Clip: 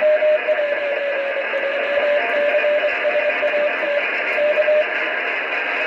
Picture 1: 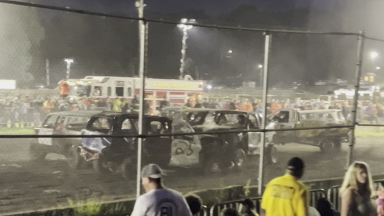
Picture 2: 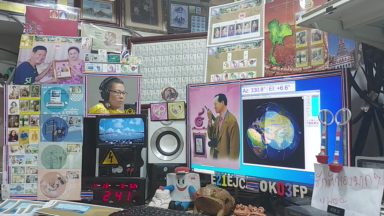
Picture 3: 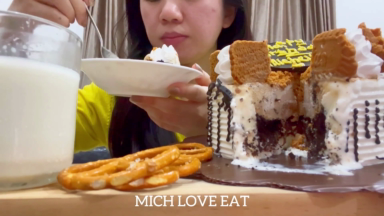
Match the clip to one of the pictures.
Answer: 2